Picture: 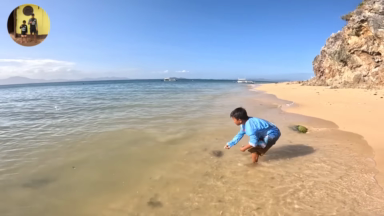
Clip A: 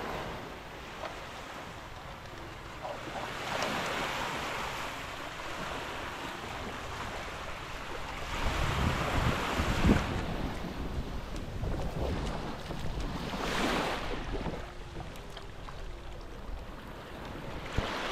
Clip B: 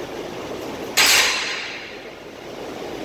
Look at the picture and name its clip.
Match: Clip A